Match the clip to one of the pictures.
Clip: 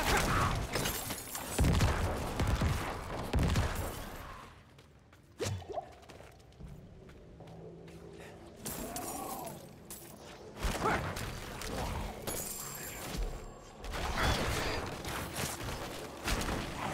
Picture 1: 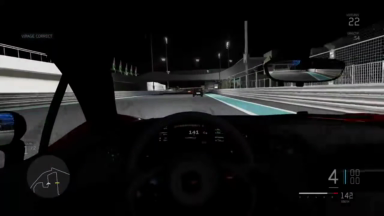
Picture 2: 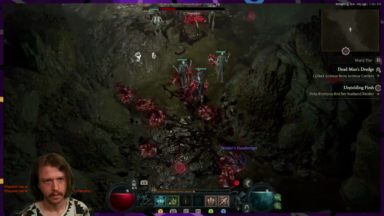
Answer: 2